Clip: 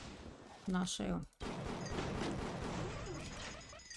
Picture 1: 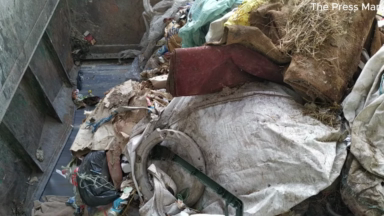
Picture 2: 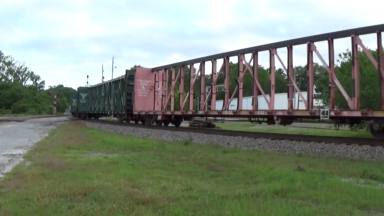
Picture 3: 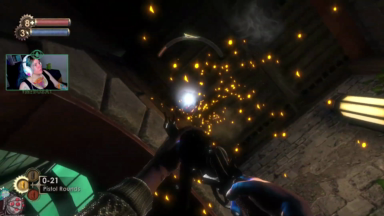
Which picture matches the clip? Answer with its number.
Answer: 3